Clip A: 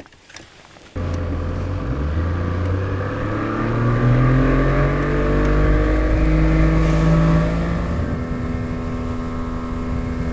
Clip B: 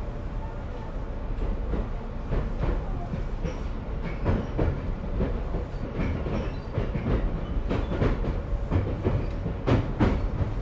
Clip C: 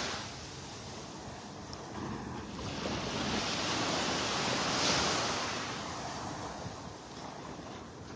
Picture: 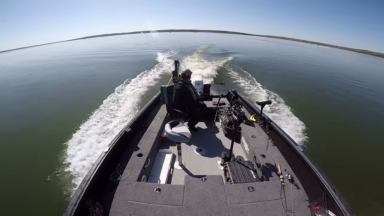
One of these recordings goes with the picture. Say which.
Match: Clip A